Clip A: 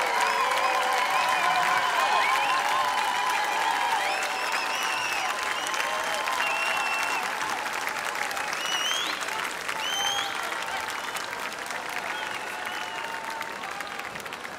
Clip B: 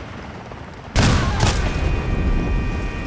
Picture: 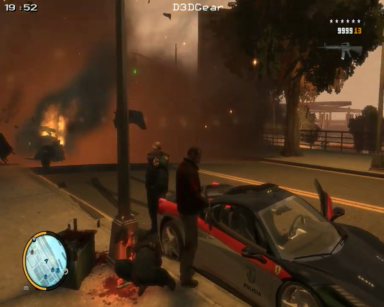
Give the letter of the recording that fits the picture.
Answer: B